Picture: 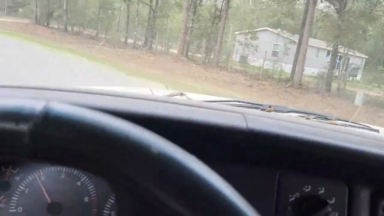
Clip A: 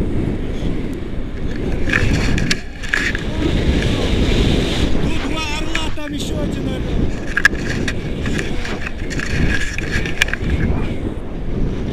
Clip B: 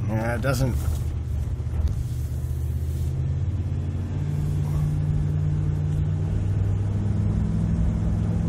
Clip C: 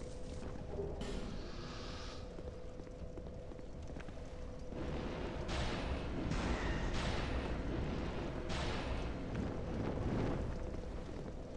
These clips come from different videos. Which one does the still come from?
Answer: B